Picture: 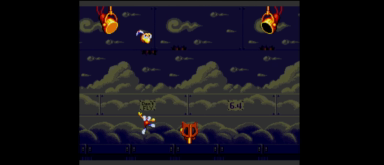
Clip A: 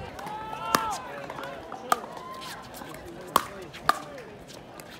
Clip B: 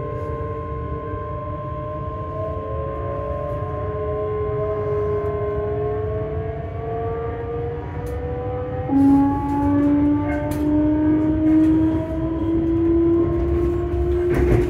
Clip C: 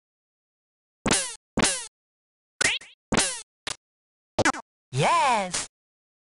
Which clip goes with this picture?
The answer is C